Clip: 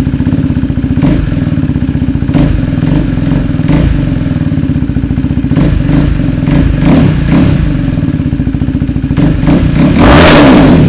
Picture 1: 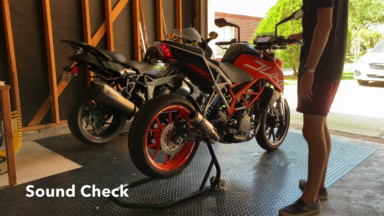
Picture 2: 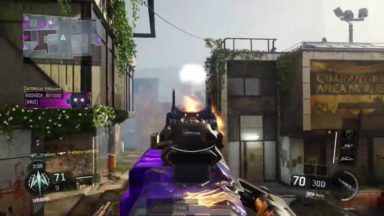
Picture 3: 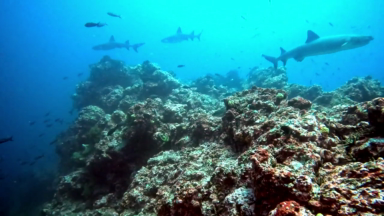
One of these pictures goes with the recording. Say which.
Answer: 1